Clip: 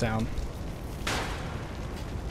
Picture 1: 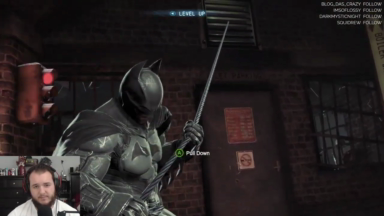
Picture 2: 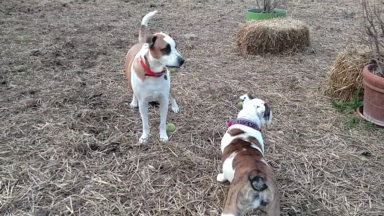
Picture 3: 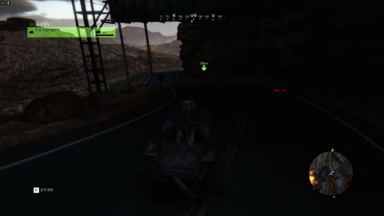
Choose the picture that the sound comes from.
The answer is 1